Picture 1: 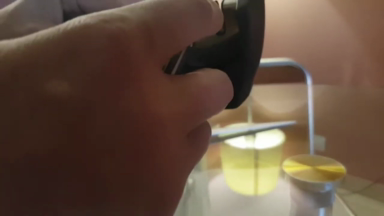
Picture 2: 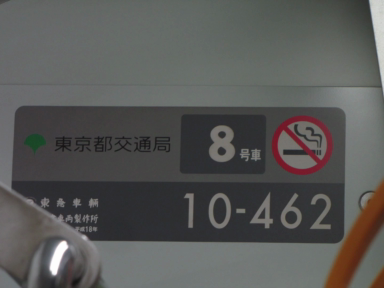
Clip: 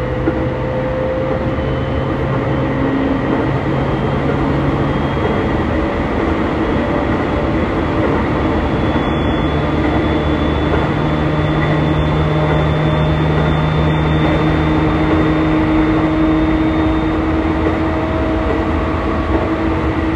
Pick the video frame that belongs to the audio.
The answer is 2